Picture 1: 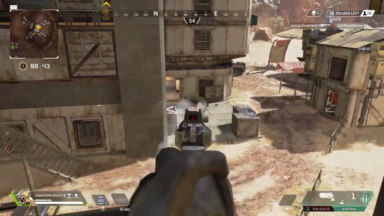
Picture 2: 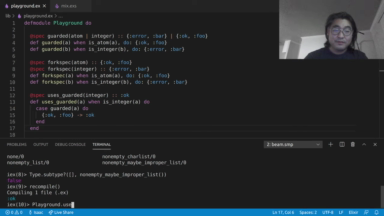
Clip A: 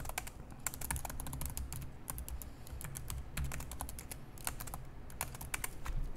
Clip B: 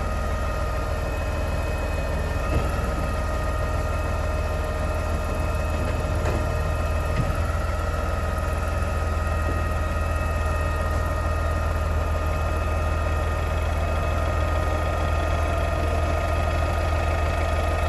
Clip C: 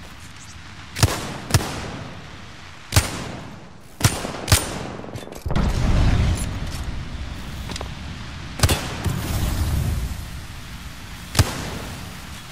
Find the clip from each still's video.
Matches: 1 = C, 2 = A